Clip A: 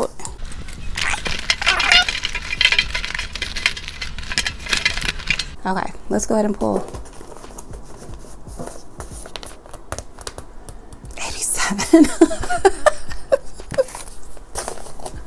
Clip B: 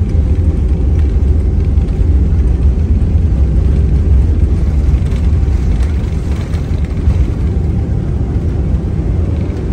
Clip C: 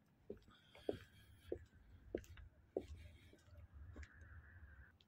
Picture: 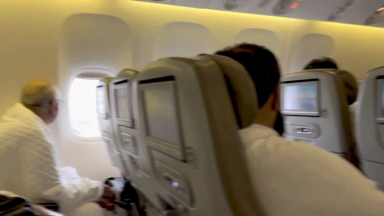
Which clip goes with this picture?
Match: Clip B